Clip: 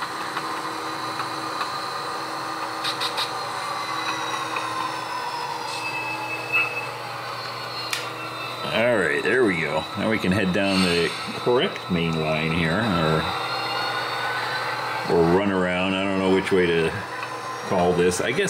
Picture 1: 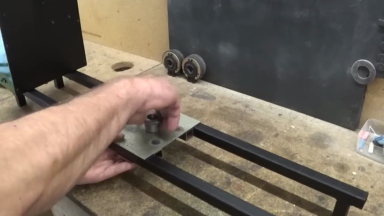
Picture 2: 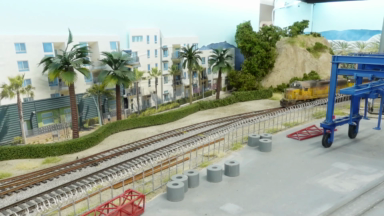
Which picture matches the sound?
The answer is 2